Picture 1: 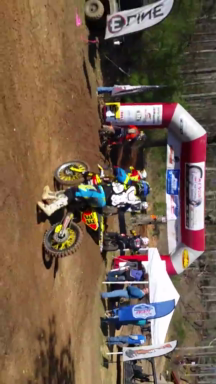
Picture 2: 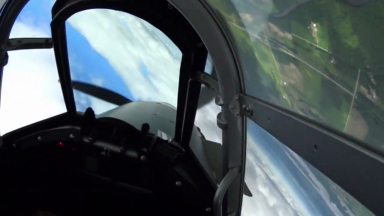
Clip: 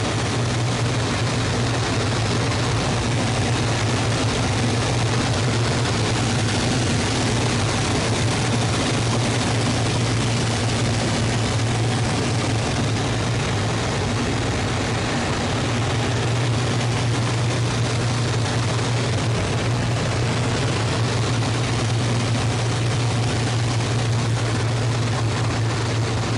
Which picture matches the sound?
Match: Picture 2